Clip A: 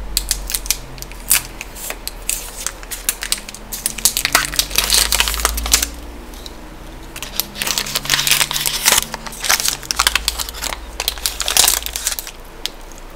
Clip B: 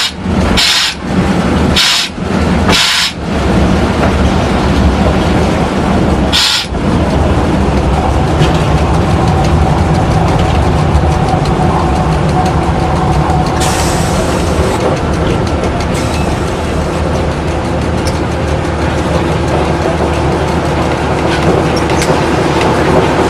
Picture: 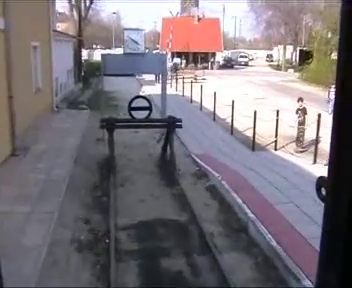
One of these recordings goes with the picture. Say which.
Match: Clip B